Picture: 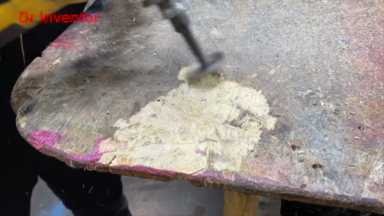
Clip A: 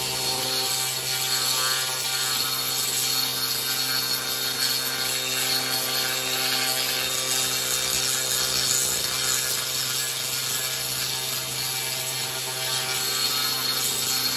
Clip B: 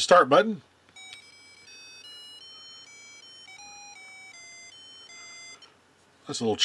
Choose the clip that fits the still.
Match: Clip A